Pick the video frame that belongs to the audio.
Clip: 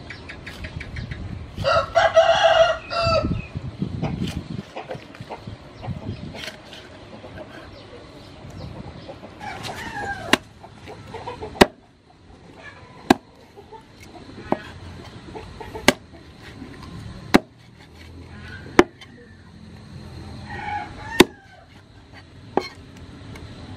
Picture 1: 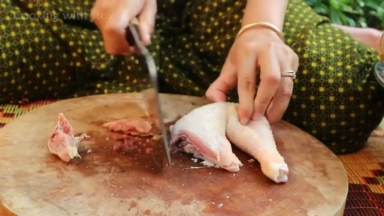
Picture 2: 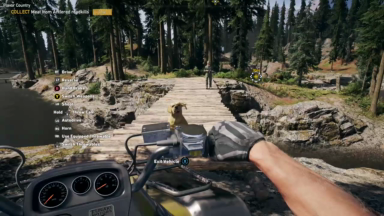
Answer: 1